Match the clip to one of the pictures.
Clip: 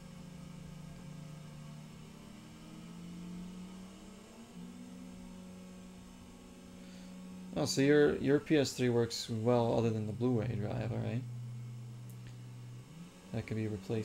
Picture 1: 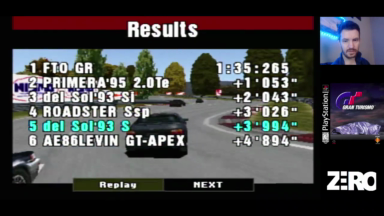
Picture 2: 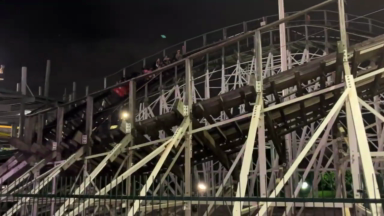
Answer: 1